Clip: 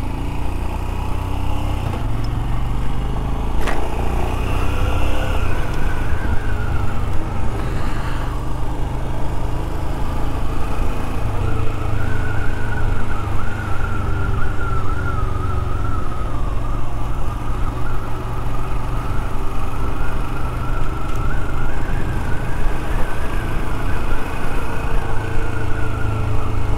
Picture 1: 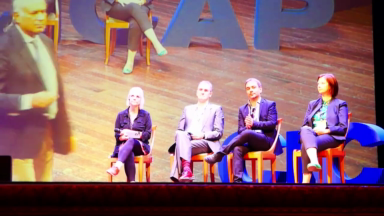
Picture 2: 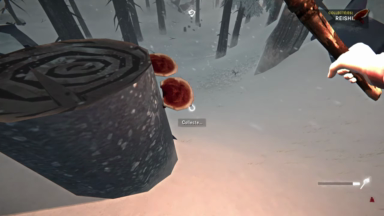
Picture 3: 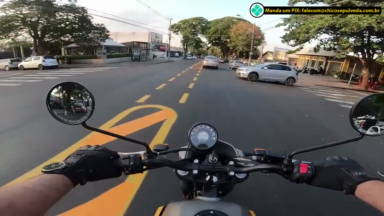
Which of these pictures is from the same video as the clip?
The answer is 3